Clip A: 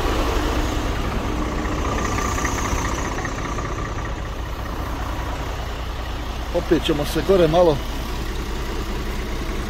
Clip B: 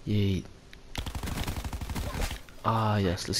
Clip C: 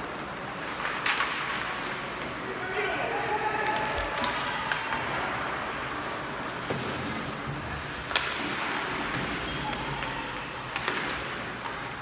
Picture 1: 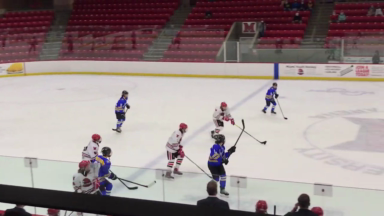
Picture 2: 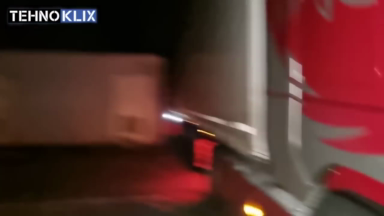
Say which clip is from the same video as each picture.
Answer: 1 C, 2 A